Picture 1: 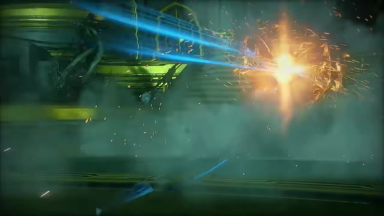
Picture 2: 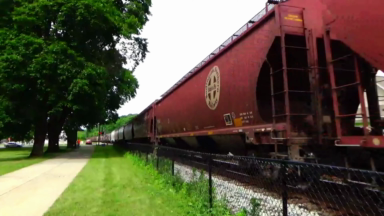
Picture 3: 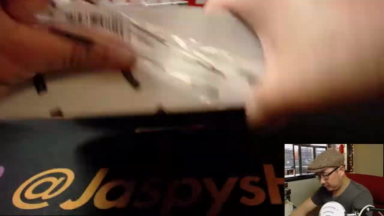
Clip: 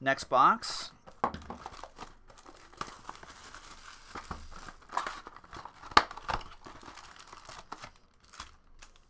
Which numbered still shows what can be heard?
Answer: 3